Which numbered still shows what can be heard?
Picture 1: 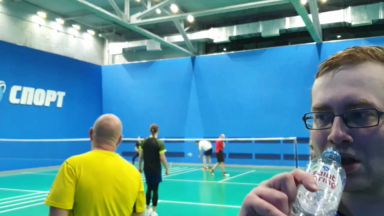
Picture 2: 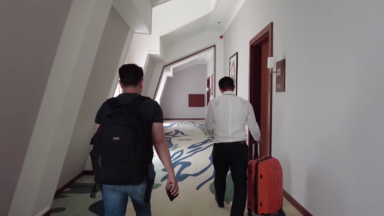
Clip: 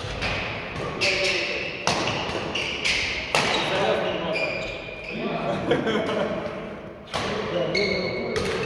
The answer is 1